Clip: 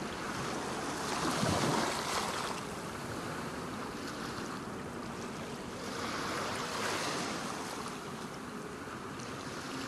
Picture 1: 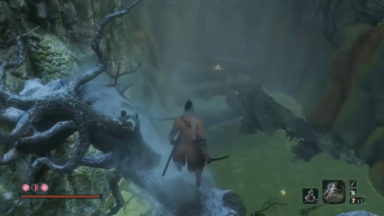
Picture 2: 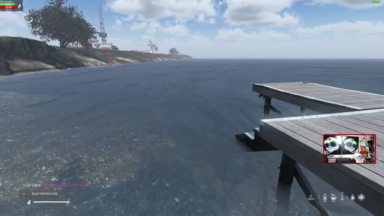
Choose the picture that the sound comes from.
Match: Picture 2